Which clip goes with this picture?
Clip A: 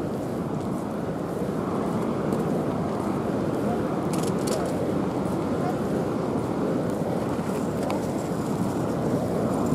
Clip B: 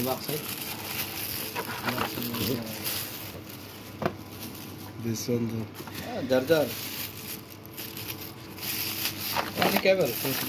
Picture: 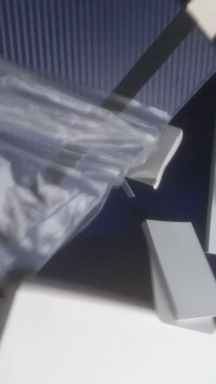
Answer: B